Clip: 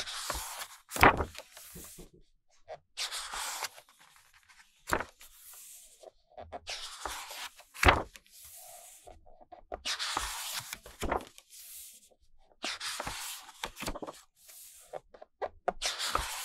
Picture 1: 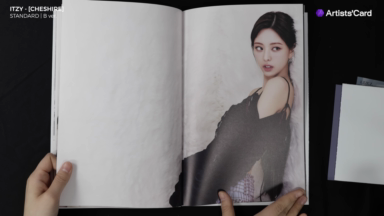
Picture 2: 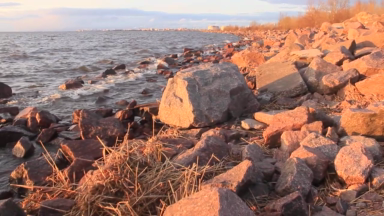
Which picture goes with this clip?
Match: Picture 1